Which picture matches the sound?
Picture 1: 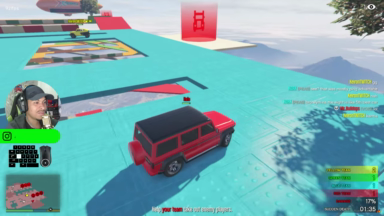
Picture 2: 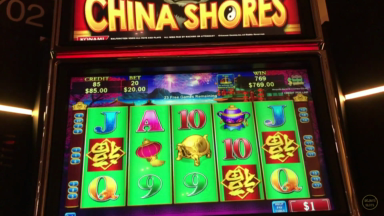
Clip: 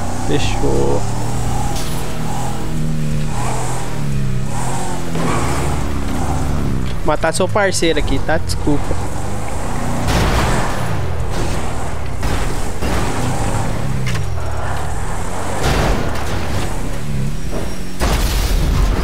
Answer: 1